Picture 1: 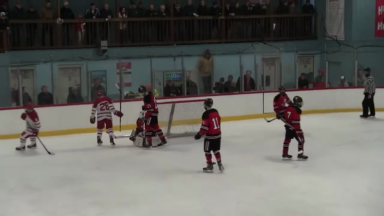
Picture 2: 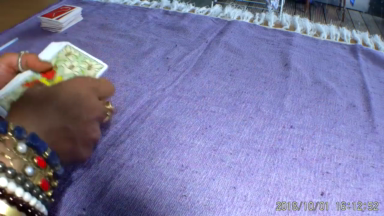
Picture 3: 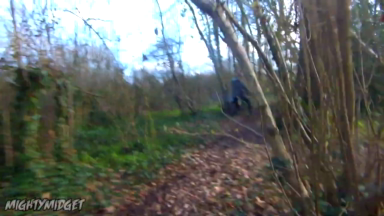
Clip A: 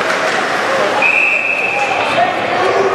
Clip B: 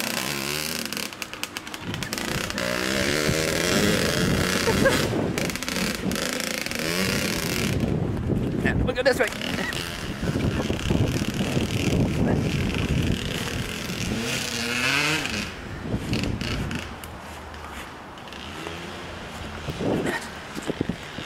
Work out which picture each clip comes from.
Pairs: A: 1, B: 3